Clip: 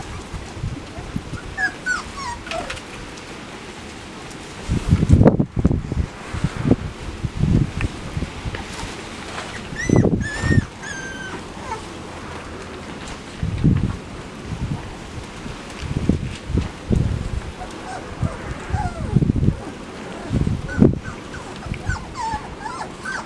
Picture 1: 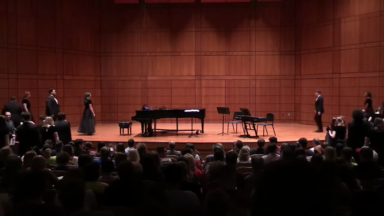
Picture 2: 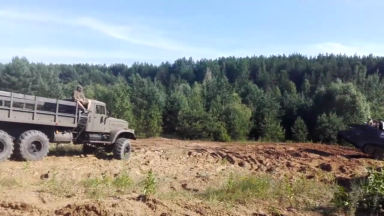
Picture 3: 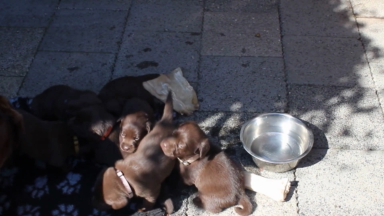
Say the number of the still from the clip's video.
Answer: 3